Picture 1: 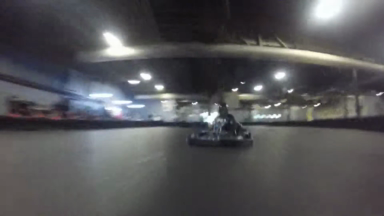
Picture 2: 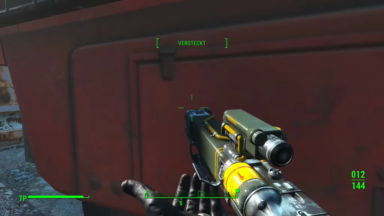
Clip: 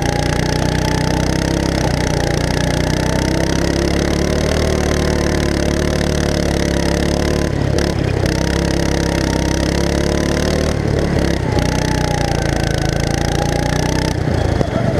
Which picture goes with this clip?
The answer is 1